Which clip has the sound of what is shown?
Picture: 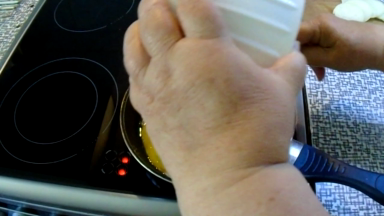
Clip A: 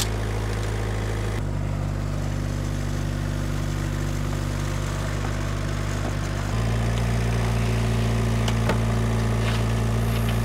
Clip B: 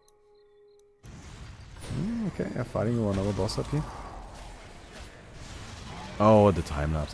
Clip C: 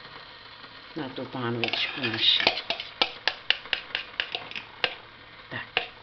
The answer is C